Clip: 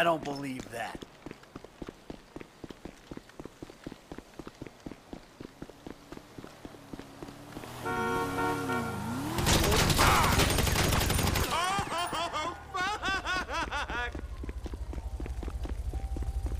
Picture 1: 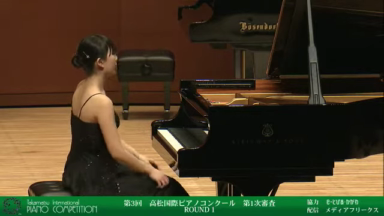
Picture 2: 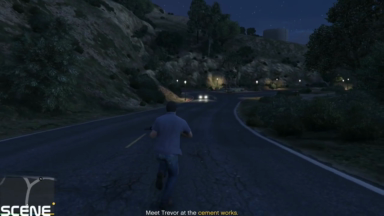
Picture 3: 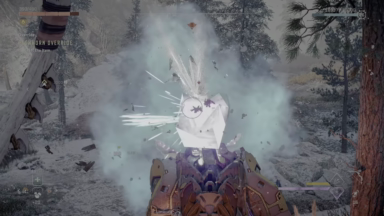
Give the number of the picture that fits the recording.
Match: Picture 2